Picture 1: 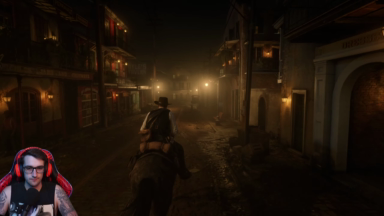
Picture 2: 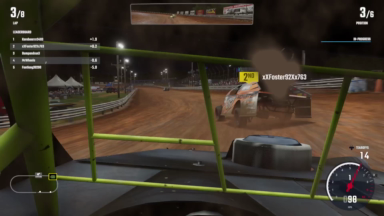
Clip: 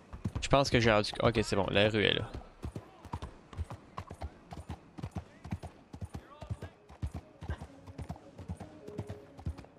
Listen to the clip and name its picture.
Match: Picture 1